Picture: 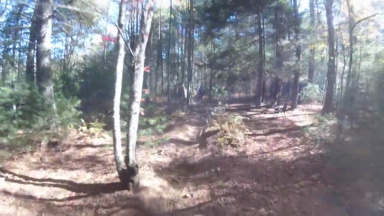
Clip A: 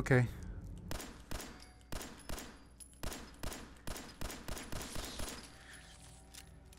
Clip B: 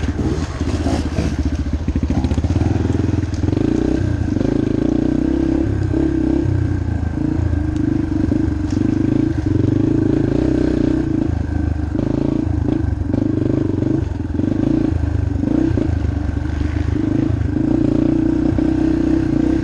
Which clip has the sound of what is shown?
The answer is B